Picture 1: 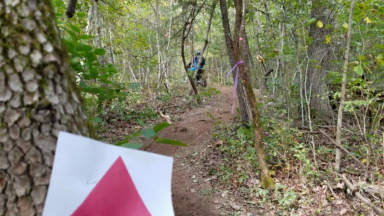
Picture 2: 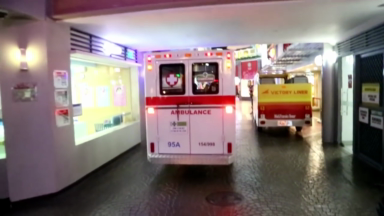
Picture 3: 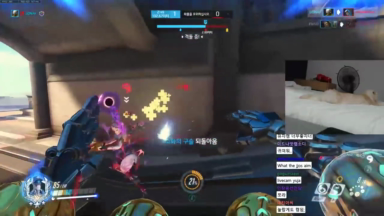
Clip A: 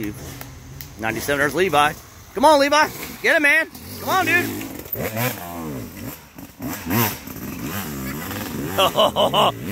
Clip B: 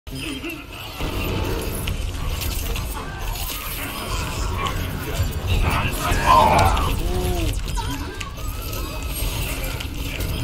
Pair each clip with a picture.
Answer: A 1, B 3